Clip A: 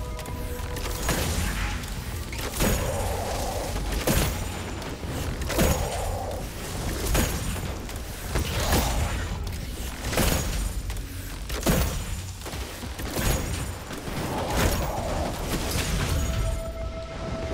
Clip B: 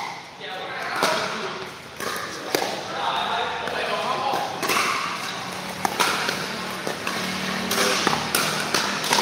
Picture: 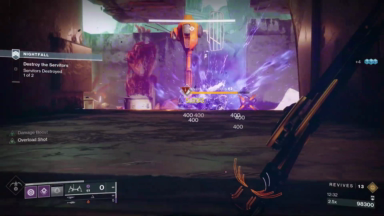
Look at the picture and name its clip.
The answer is A